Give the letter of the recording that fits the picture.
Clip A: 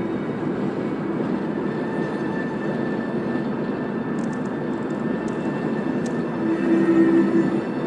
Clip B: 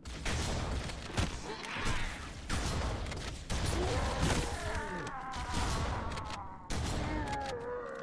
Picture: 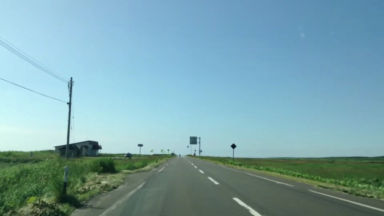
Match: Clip A